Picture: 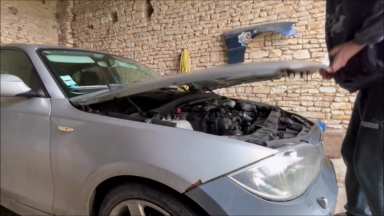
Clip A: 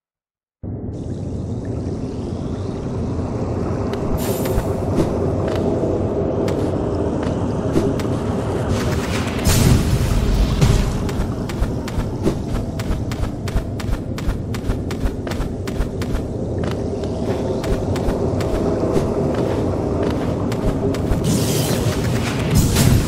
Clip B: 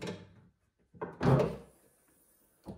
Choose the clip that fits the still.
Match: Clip B